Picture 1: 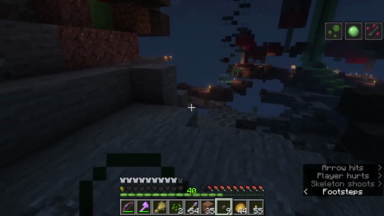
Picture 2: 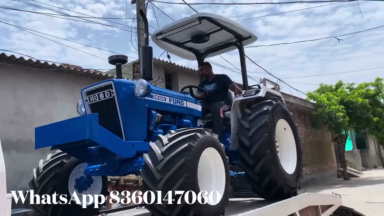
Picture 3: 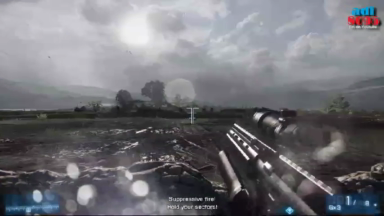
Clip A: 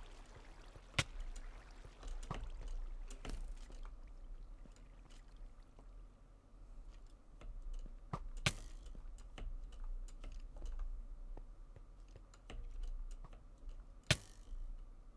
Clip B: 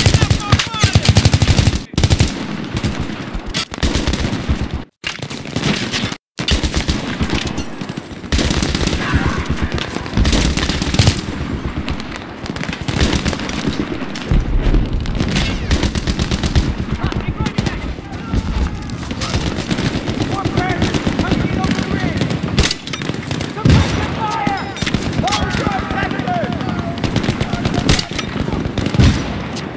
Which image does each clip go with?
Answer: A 1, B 3